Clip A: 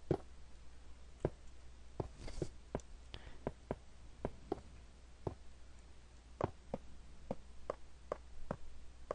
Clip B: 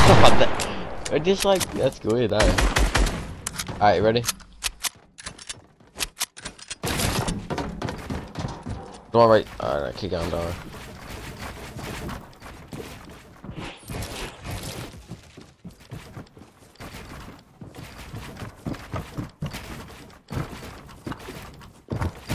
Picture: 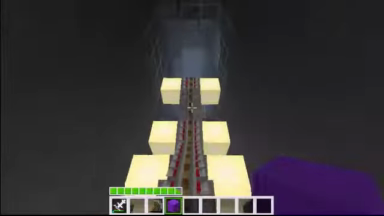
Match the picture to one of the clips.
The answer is A